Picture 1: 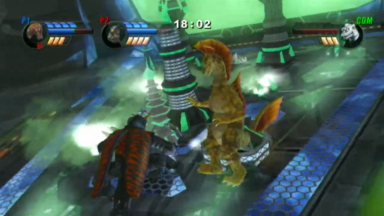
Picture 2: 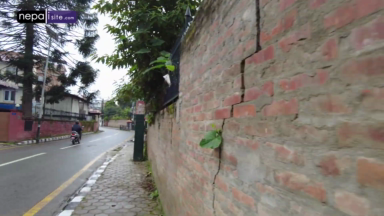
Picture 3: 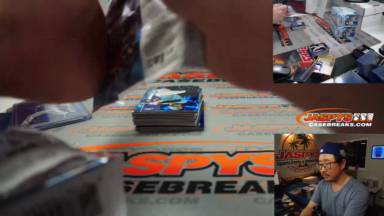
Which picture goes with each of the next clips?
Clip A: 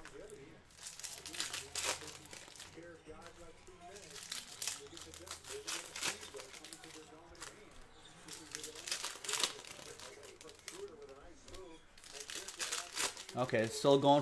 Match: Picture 3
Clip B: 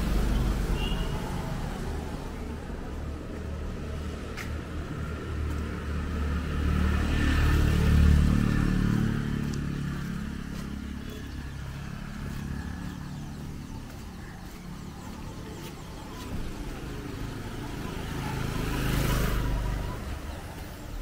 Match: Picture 2